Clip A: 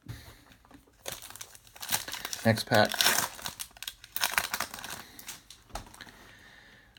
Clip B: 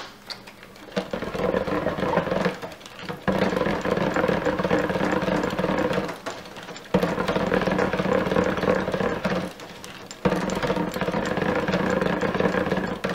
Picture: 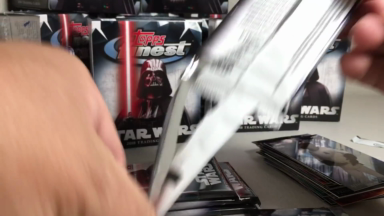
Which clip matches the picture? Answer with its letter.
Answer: A